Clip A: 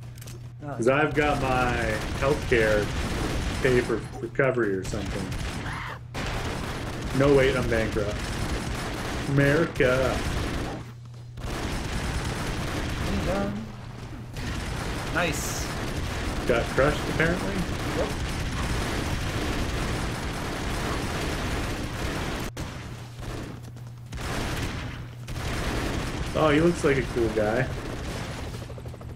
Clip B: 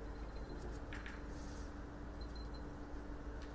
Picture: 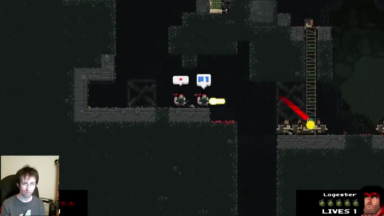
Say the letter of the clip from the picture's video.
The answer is A